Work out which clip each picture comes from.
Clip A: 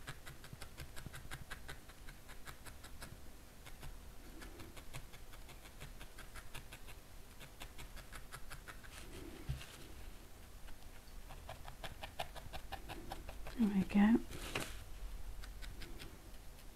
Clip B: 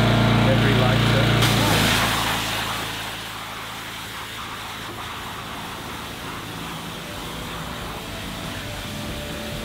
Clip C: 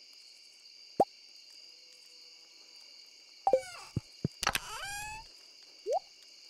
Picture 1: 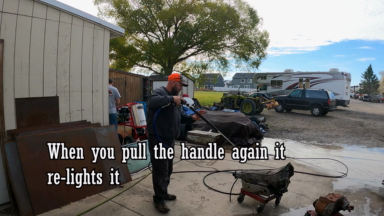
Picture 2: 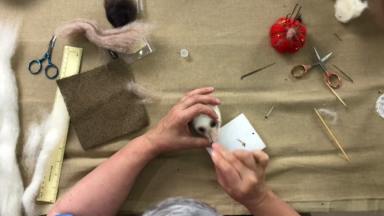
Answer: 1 B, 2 A